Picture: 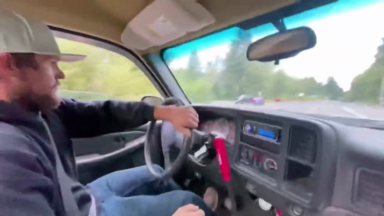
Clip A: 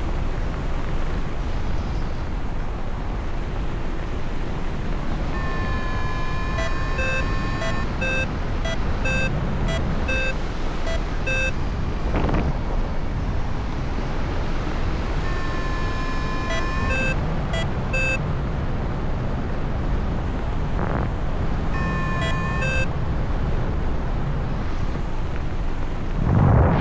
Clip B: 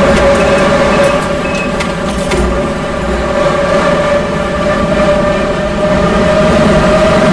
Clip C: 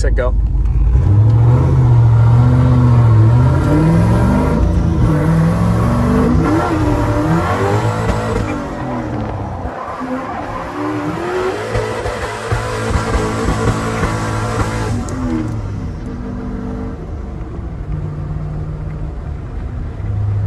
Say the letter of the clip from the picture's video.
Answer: C